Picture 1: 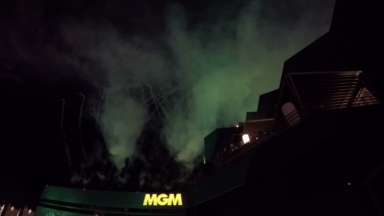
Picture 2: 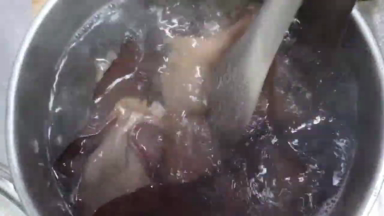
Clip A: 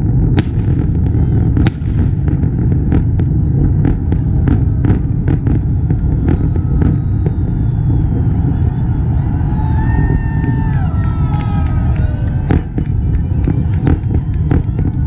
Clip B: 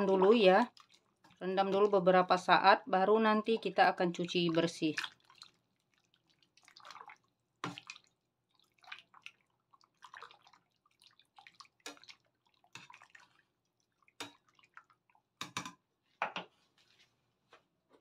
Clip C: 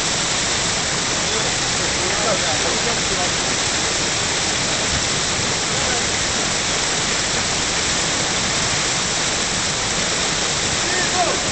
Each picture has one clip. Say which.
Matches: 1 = A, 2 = B